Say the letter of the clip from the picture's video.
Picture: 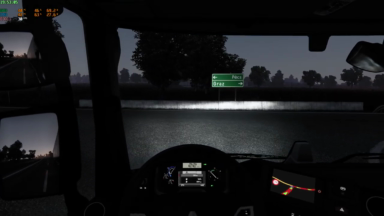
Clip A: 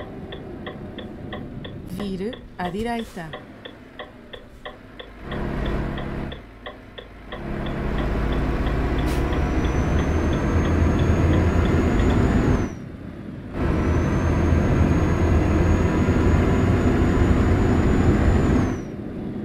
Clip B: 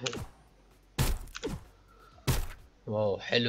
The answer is A